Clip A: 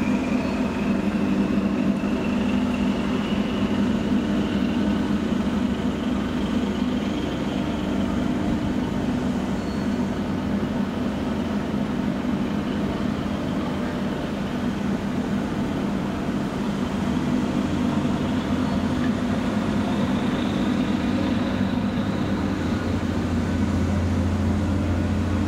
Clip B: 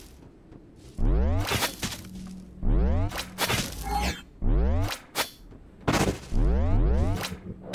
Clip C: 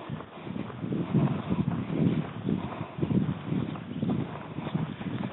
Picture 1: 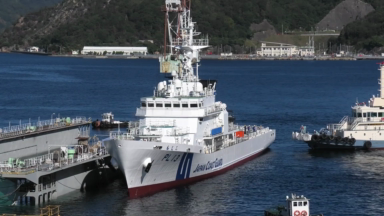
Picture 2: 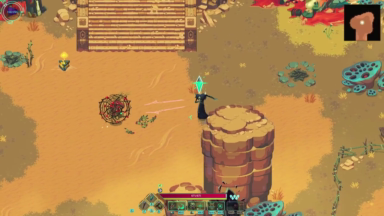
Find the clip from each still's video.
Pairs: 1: A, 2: B